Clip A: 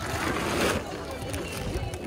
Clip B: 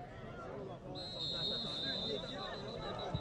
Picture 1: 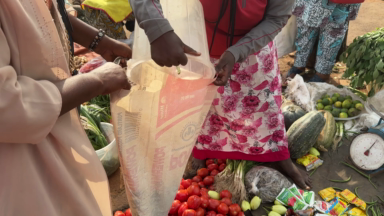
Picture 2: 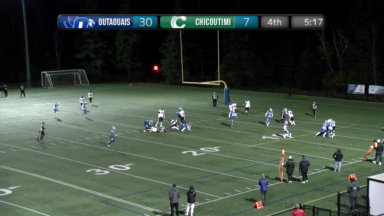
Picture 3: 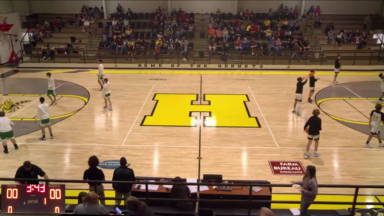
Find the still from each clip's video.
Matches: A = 1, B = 2